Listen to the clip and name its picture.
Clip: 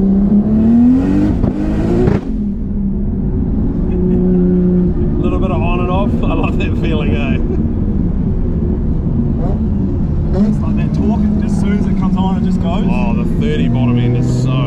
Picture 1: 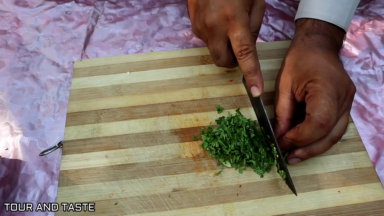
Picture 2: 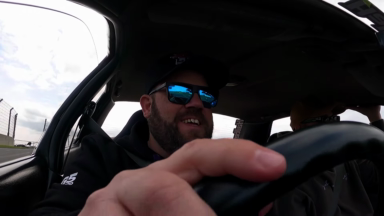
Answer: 2